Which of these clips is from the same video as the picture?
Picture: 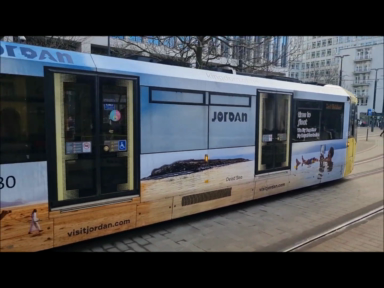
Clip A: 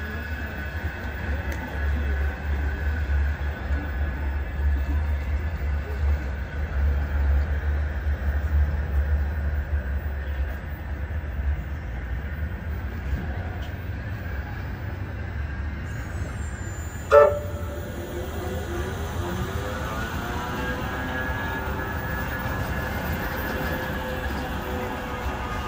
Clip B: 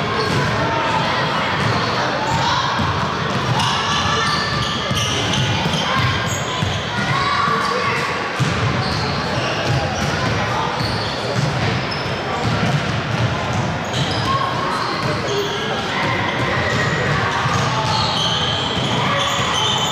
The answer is A